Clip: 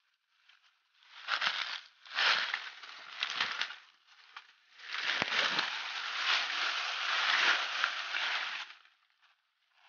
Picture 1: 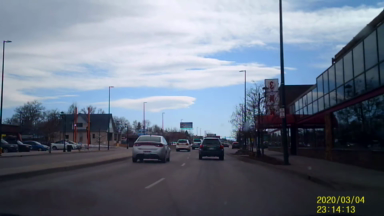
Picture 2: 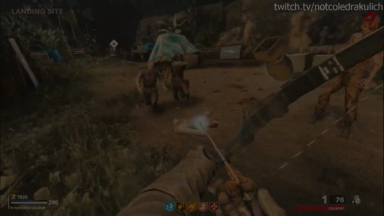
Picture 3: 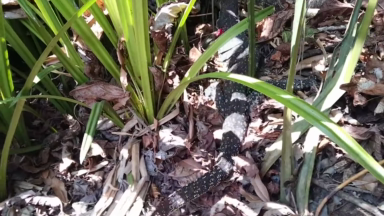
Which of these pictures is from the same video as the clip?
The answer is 3